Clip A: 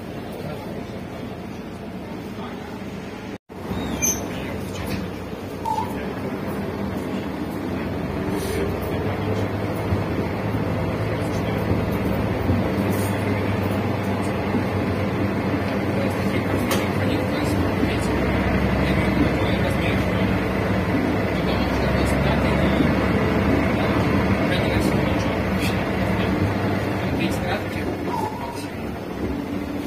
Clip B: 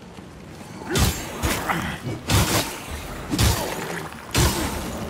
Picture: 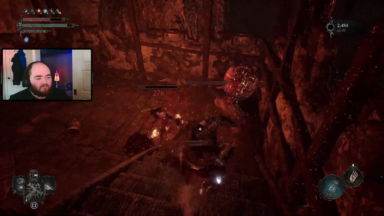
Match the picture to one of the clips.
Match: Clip B